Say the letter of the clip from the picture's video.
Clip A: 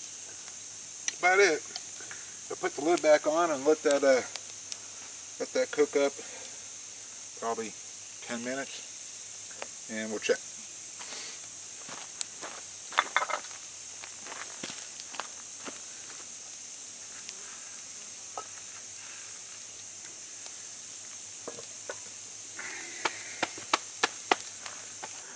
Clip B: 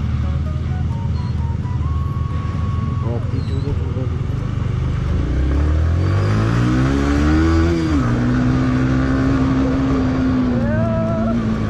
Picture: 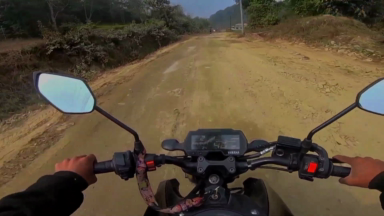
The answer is B